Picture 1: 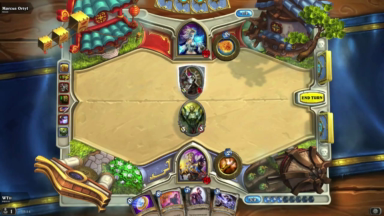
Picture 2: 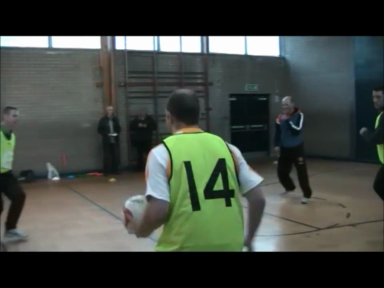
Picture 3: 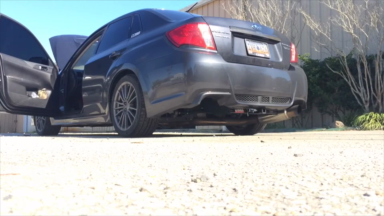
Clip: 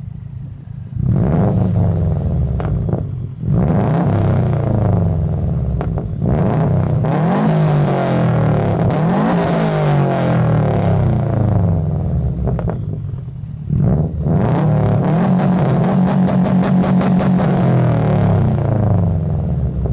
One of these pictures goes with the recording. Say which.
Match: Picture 3